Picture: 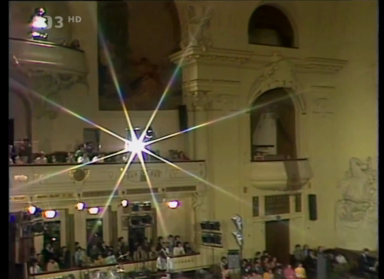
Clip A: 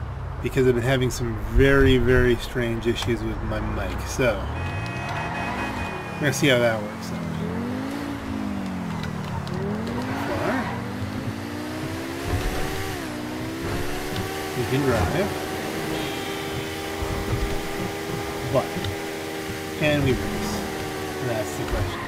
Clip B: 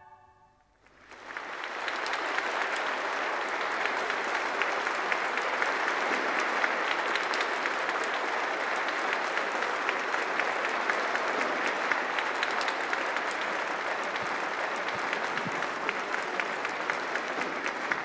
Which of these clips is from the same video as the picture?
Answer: B